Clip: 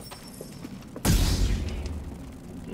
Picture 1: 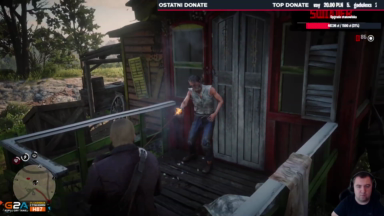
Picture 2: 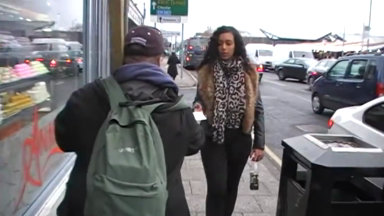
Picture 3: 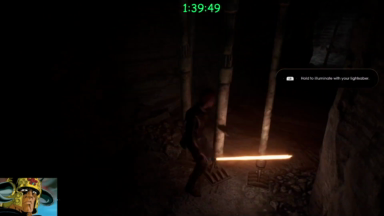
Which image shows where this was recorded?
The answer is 3